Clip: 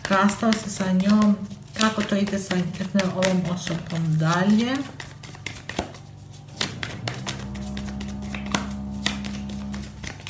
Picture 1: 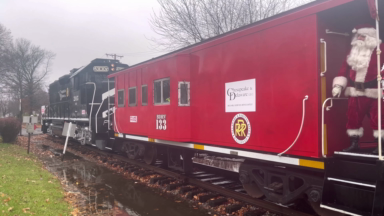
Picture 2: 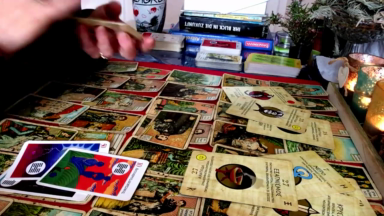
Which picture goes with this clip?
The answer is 2